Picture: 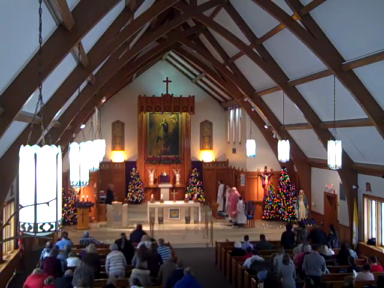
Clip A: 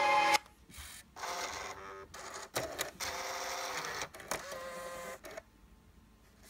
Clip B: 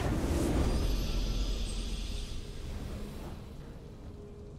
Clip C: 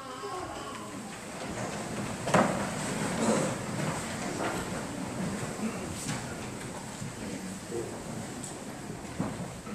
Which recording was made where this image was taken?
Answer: C